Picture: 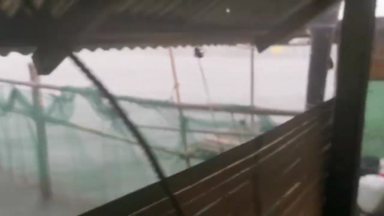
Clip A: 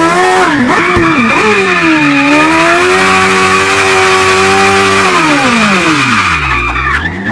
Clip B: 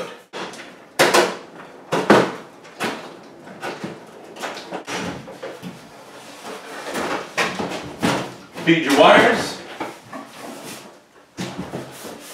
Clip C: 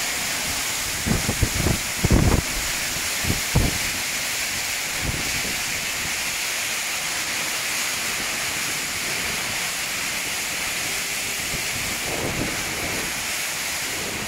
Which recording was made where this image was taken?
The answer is C